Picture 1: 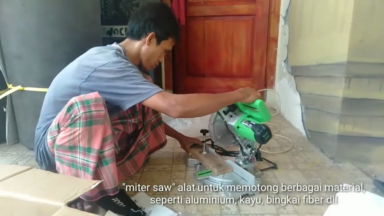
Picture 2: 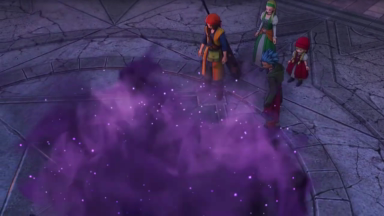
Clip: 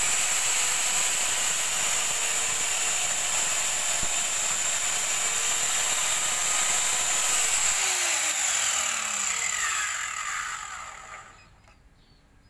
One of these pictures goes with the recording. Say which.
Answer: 1